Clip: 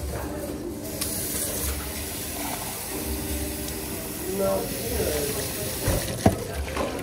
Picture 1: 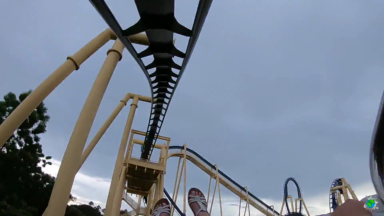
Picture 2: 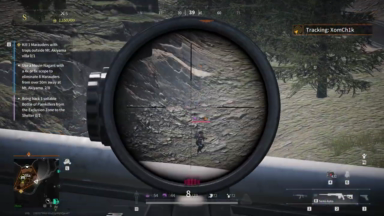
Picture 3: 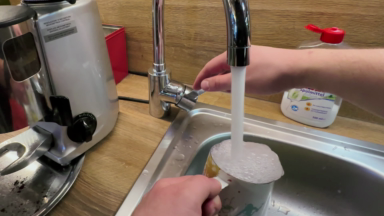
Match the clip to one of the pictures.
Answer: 3